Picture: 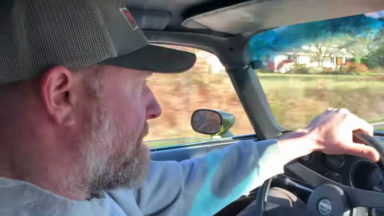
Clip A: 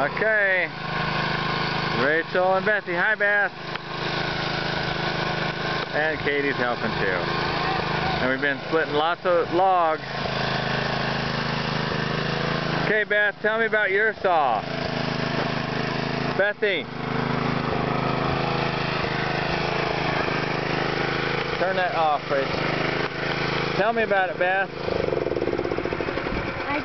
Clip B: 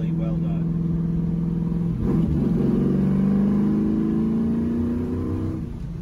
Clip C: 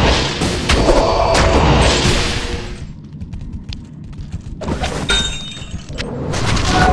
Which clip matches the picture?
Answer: B